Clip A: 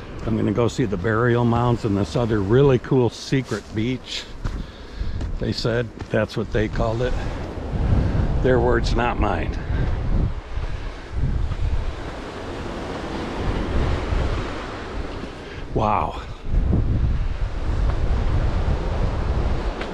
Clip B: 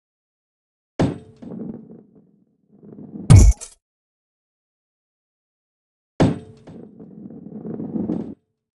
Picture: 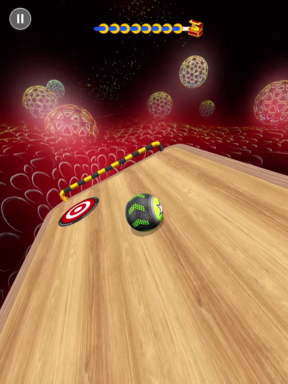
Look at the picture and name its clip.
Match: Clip B